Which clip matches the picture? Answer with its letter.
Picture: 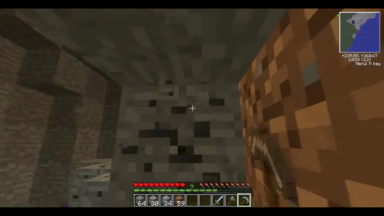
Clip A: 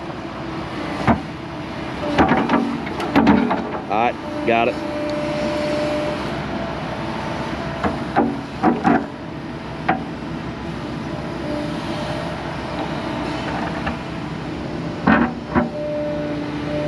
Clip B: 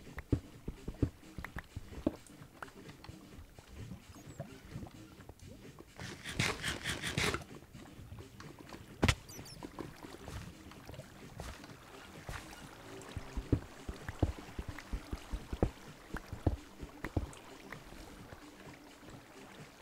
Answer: B